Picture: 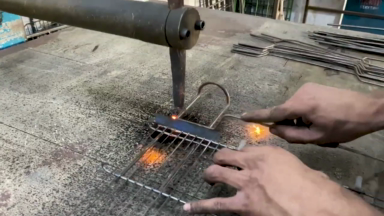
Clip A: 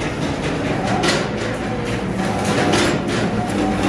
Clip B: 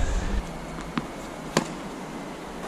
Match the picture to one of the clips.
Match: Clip A